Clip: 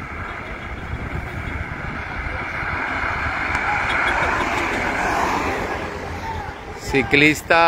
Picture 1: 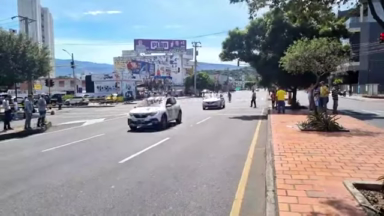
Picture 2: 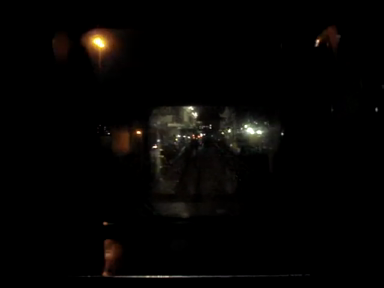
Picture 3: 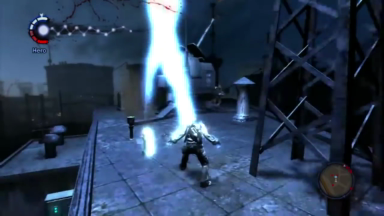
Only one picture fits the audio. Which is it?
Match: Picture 1